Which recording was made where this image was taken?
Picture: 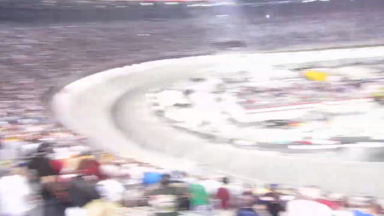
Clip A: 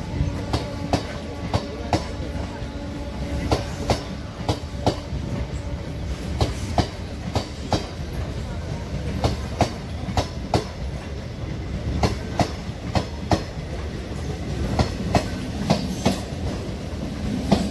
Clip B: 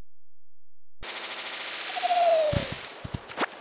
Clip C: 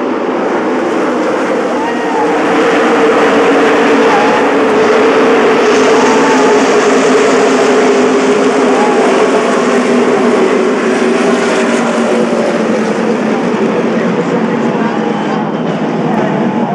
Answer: C